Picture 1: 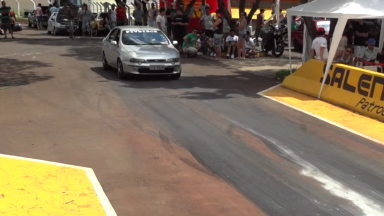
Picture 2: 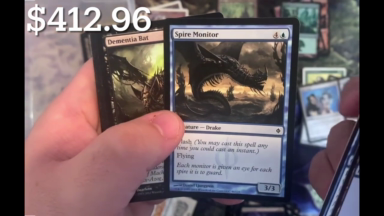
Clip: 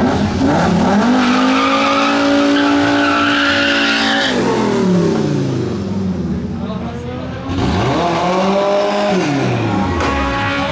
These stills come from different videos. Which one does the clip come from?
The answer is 1